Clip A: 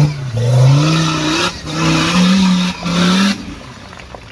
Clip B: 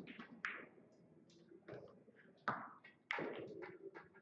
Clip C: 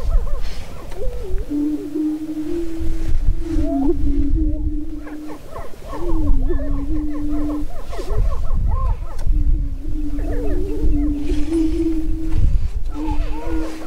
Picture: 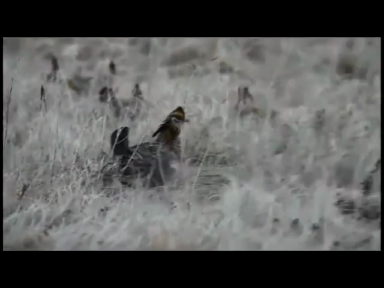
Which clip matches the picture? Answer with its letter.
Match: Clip C